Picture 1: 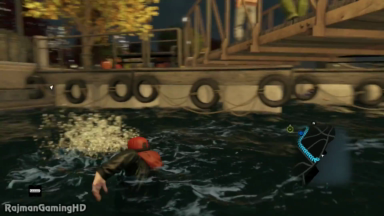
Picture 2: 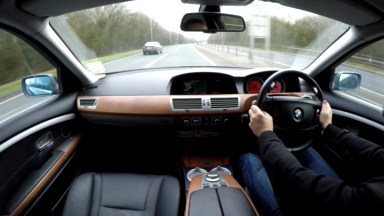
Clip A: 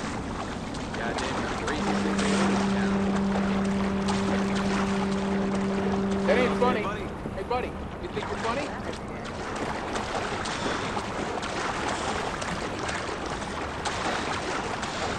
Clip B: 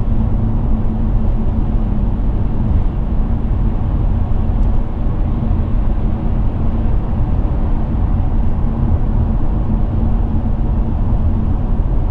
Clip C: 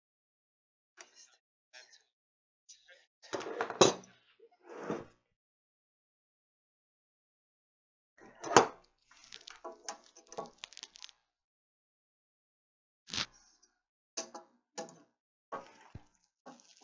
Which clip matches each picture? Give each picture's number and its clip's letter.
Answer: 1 A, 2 B